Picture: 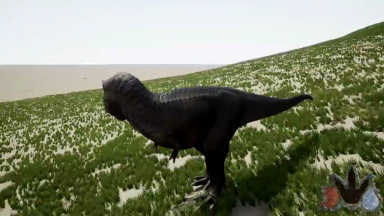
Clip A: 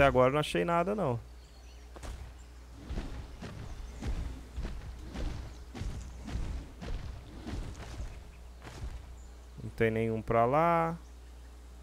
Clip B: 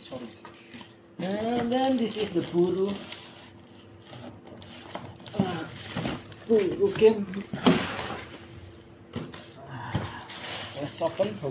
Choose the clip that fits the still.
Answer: A